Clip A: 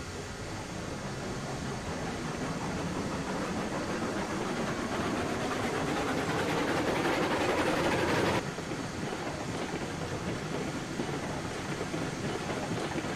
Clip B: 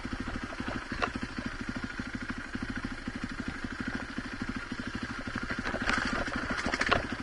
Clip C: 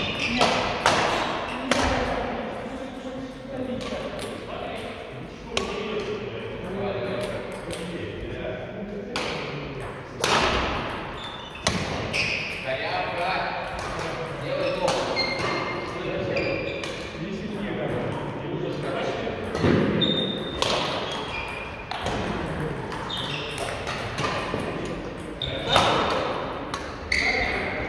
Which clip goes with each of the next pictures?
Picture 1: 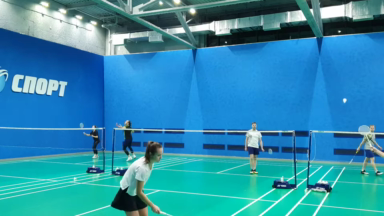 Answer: C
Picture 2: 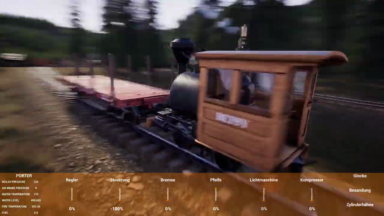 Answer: A